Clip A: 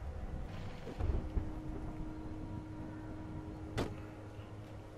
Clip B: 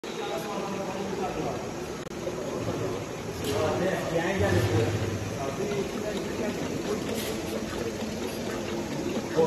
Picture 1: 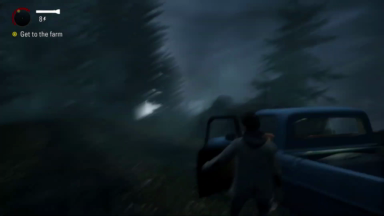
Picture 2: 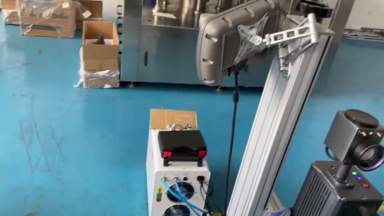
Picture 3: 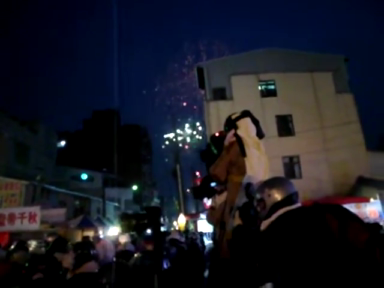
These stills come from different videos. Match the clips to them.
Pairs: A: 1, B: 2